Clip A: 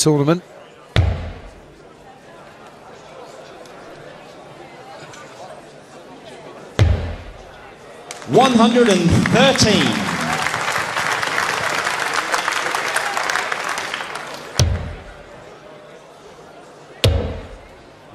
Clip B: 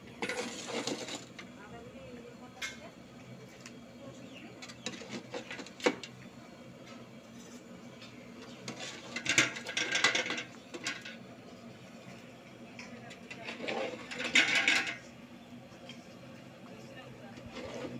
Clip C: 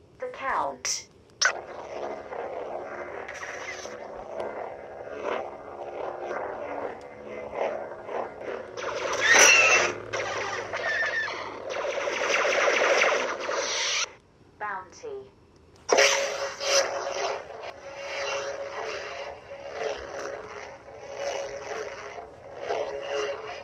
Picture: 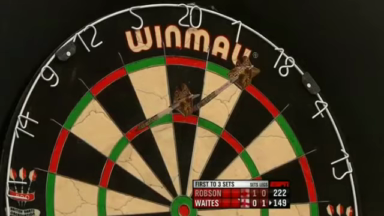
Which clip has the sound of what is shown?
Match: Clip A